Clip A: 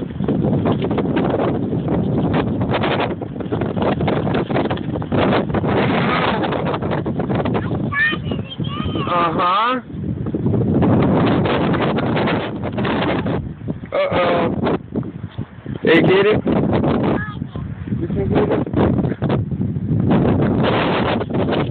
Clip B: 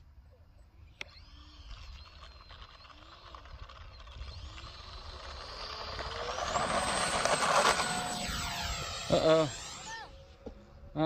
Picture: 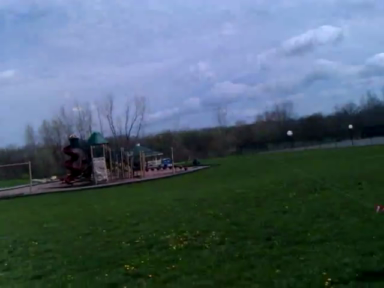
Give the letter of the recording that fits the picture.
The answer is A